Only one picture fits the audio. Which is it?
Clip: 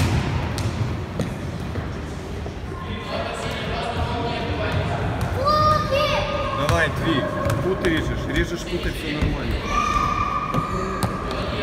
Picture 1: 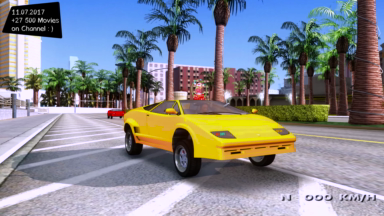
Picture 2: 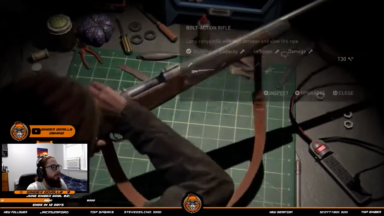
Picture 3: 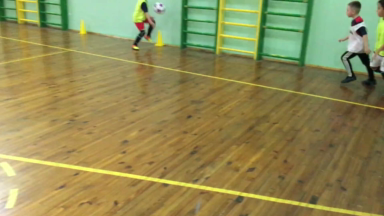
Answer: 3